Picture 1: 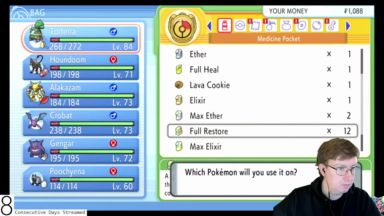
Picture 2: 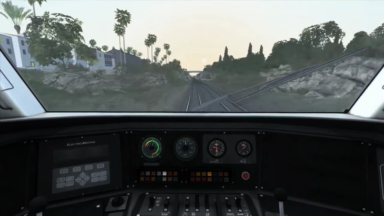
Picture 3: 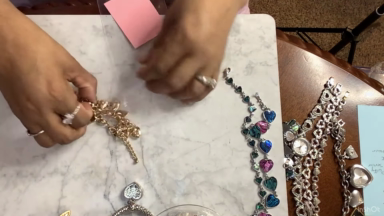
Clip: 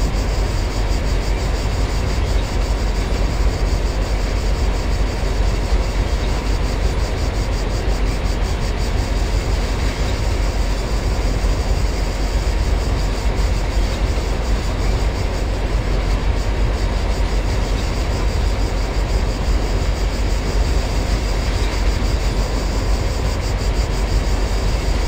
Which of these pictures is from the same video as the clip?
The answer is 2